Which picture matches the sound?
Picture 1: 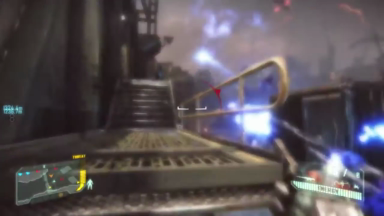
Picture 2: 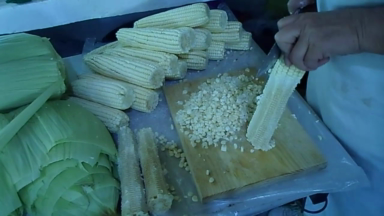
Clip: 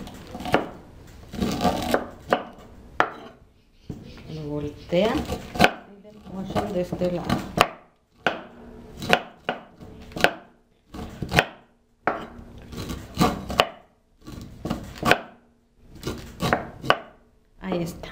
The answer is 2